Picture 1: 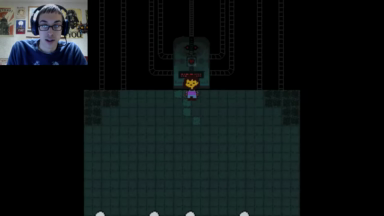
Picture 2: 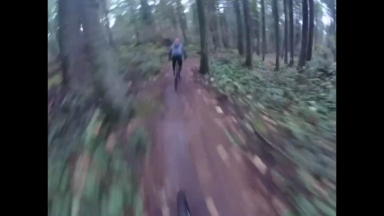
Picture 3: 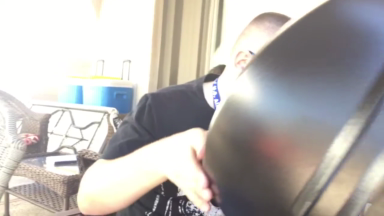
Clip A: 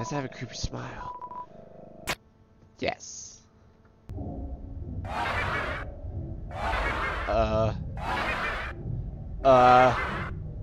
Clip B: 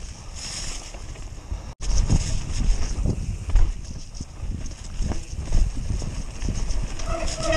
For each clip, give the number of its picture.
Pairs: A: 1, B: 2